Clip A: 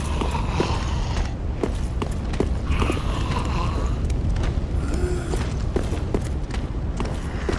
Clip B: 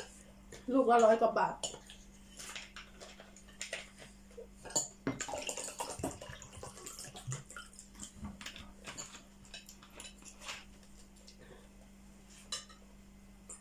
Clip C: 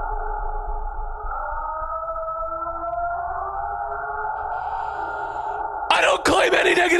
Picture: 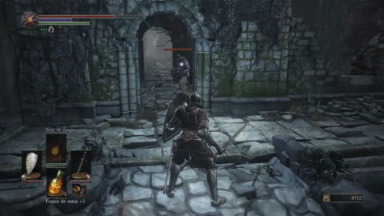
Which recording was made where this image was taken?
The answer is A